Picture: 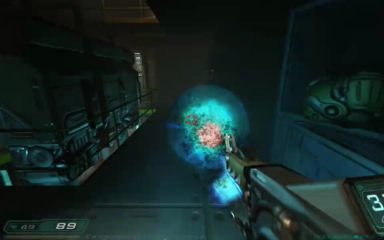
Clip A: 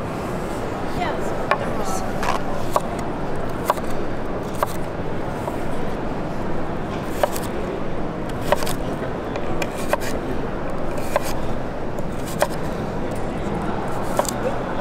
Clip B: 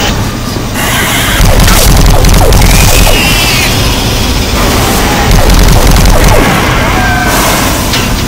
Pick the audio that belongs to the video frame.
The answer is B